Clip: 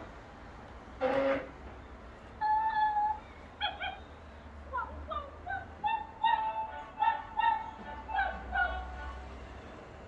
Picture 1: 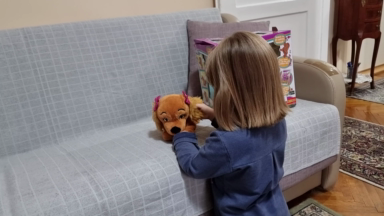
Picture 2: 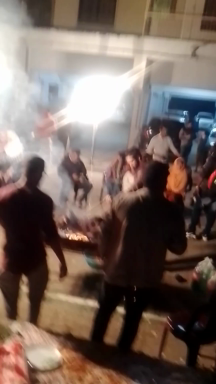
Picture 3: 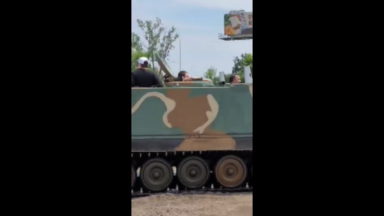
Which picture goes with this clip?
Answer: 1